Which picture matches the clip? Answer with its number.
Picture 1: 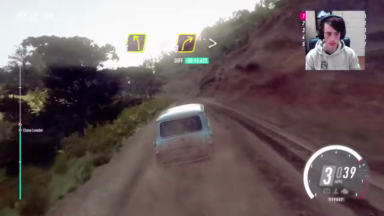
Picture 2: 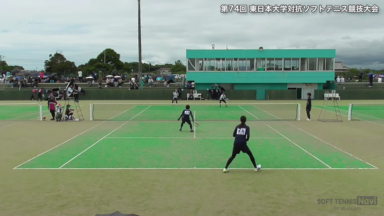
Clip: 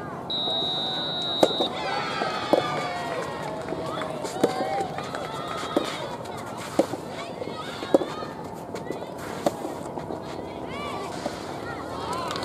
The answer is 2